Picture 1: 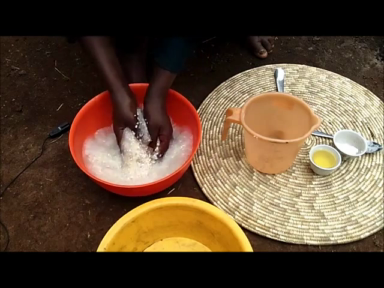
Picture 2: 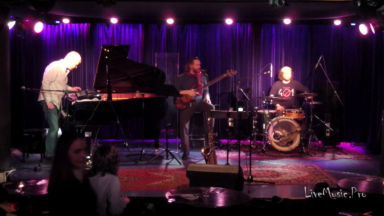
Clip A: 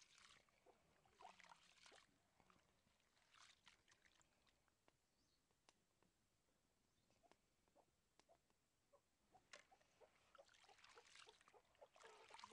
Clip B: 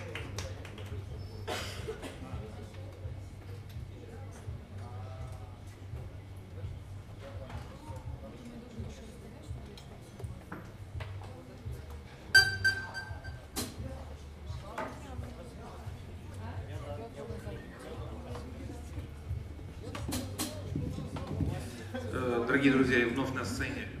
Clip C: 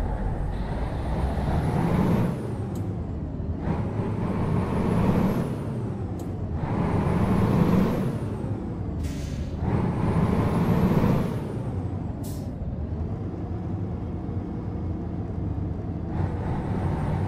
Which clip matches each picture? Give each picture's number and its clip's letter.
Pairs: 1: A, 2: B